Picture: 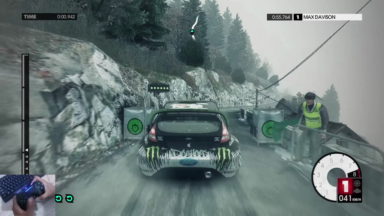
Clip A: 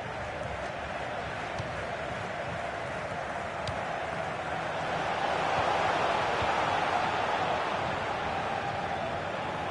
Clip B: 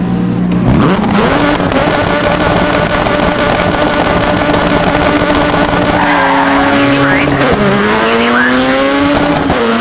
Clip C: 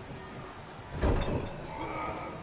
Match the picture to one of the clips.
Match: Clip B